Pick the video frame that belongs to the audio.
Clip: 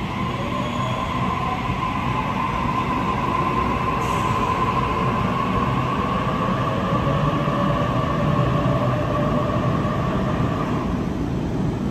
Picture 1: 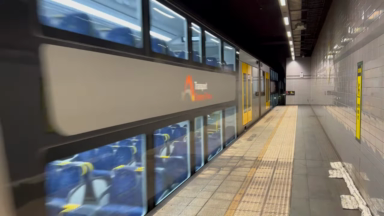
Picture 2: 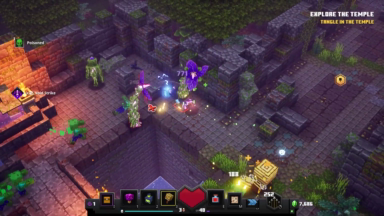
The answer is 1